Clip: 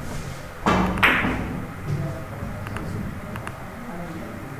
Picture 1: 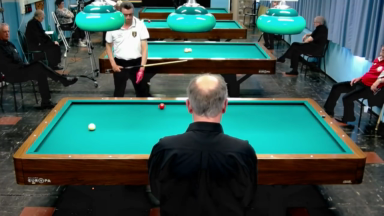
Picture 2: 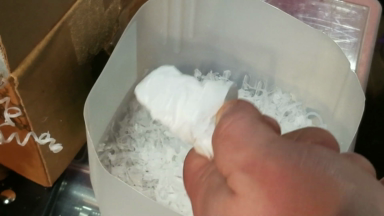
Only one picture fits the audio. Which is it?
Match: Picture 1